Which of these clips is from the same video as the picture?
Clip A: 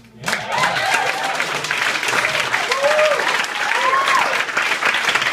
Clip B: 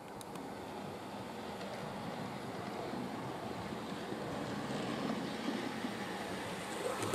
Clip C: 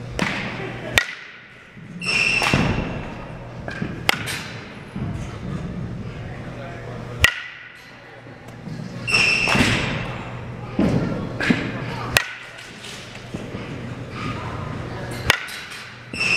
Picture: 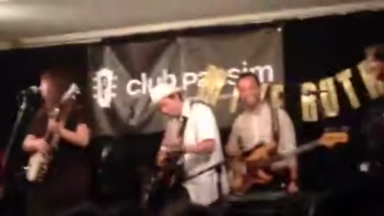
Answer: A